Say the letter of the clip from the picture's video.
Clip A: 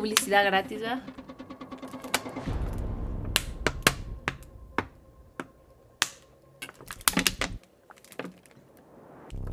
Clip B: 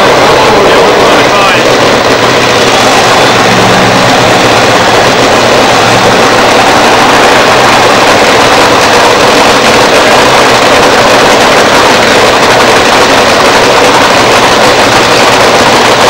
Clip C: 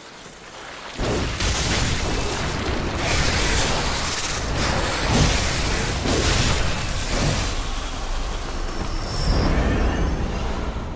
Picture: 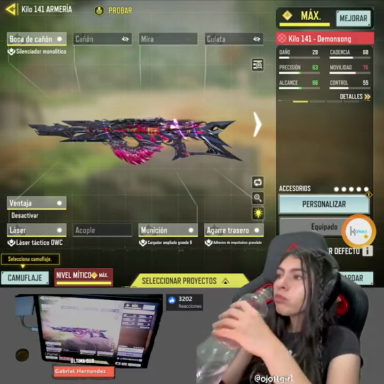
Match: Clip A